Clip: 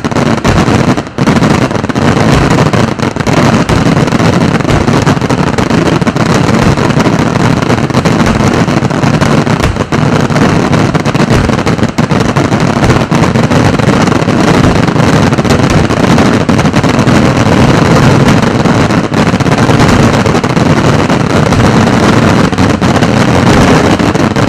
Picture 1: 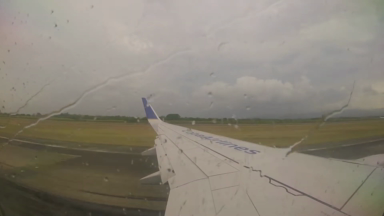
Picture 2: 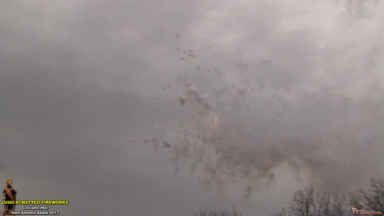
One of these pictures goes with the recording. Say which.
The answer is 2